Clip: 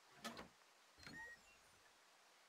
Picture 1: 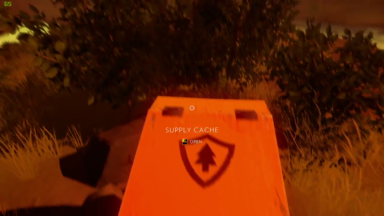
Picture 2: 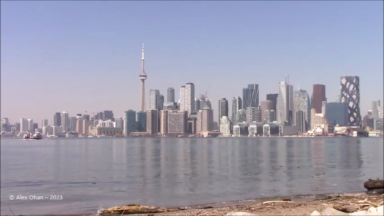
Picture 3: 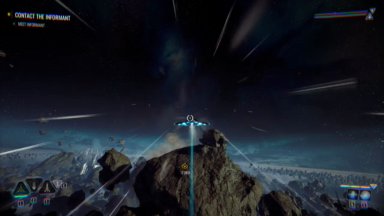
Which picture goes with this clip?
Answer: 1